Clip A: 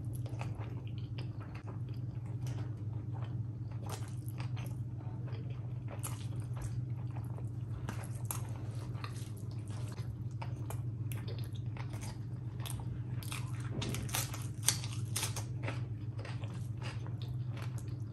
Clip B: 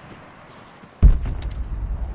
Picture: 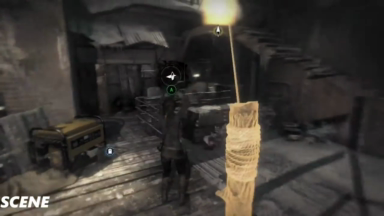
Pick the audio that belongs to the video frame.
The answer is B